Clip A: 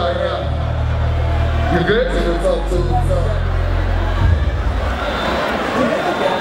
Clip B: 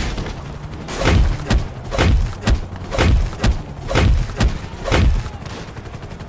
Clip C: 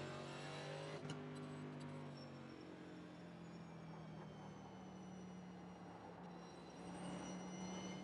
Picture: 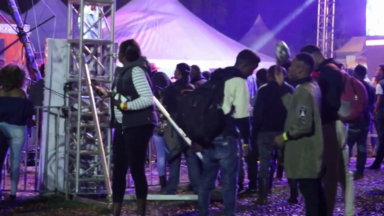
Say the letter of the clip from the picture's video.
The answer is A